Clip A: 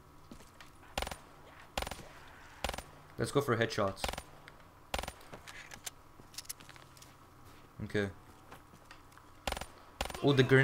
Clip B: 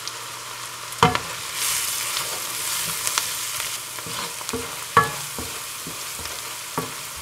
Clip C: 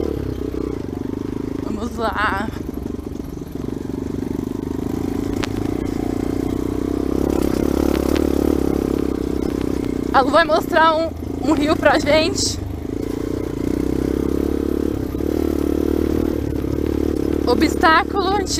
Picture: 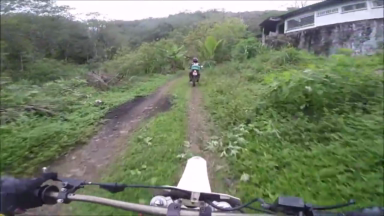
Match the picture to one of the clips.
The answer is C